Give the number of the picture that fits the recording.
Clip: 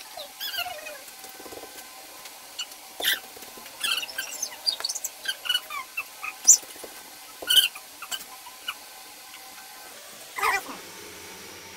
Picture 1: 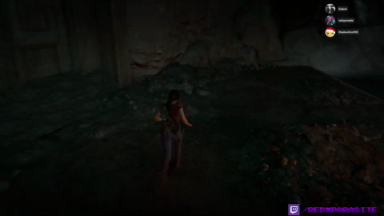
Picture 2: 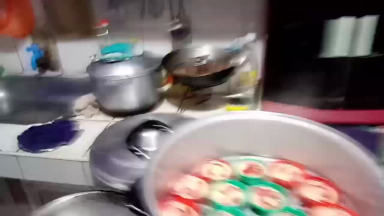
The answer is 2